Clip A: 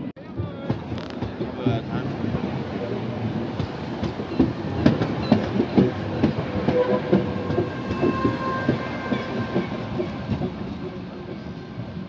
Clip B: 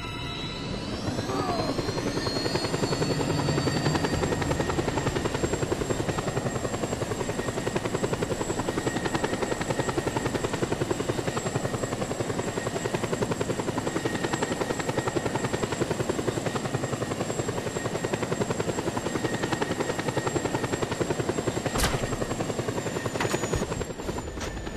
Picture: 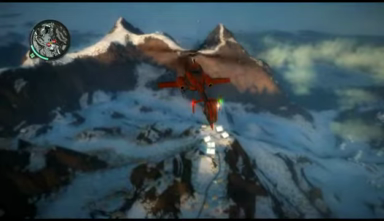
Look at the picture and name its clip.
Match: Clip B